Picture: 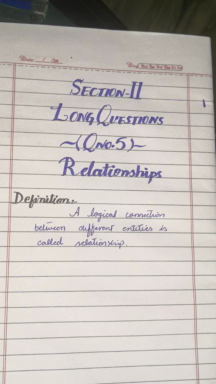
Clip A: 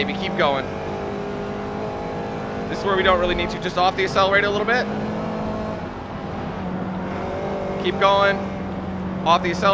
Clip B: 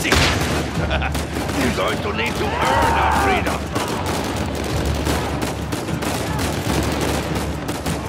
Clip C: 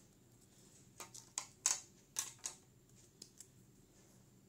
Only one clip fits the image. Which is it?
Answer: C